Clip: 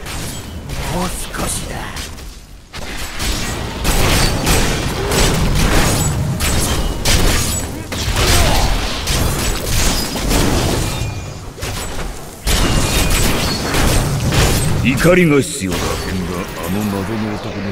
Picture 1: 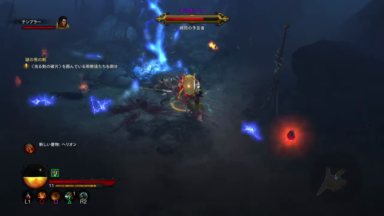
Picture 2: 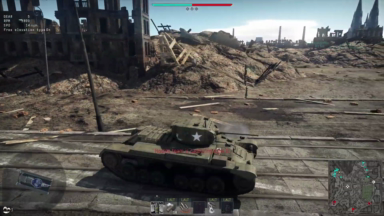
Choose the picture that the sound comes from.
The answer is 1